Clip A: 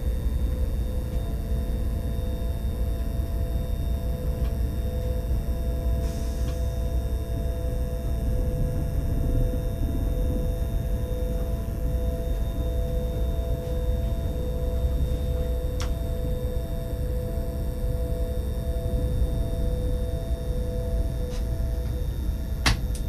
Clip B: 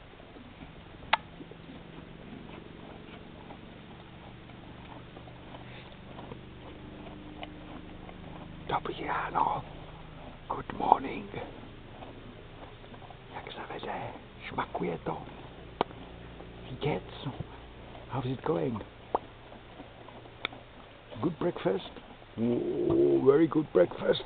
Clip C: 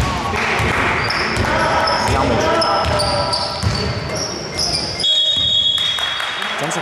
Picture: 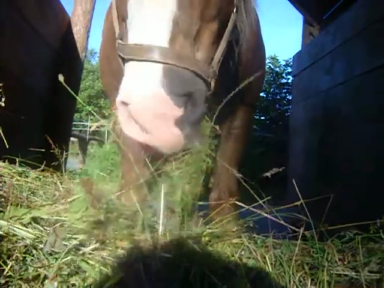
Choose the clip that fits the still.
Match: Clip B